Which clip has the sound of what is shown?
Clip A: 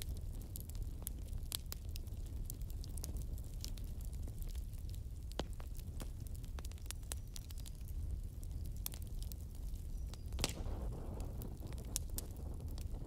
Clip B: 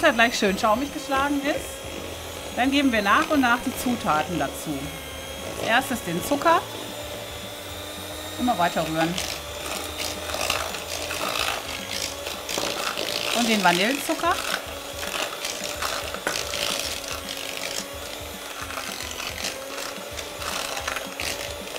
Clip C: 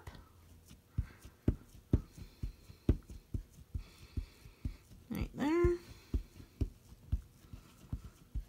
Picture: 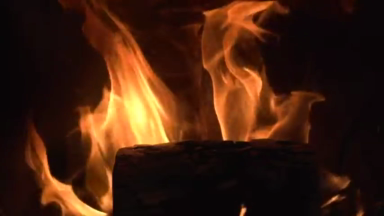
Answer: A